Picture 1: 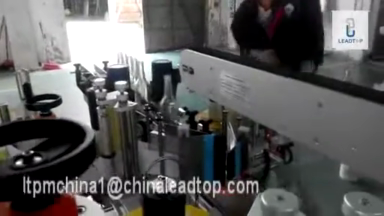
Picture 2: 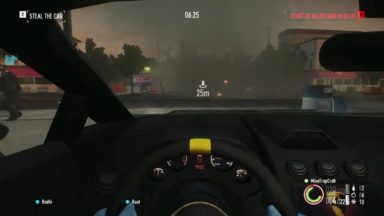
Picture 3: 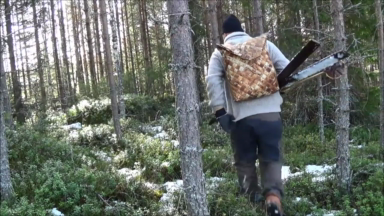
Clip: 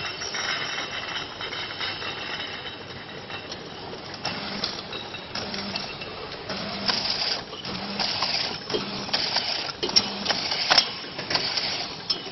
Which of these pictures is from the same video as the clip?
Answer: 1